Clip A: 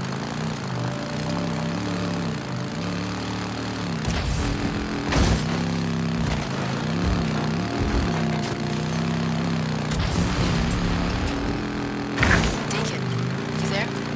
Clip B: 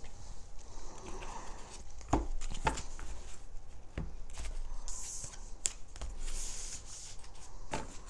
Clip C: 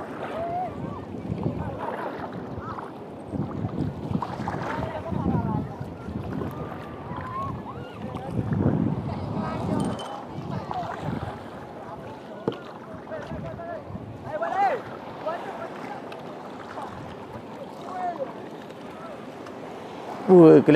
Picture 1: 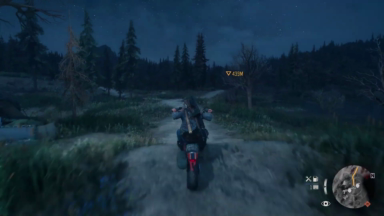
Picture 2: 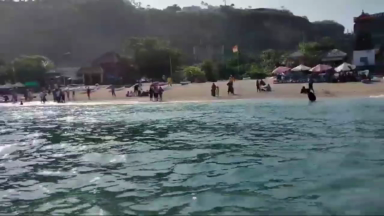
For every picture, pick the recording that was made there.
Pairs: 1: A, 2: C